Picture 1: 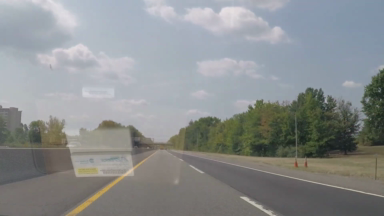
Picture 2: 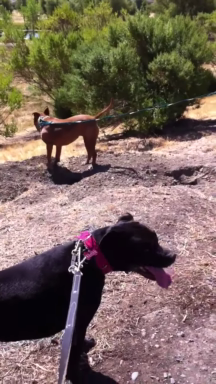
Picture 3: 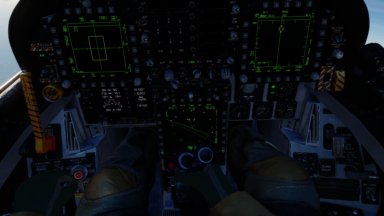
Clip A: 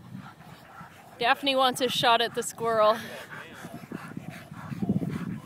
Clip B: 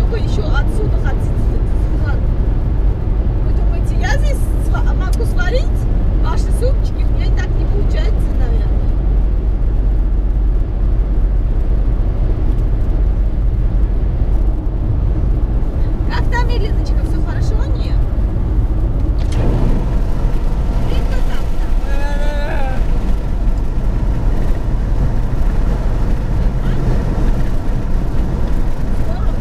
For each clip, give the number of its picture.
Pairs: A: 2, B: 1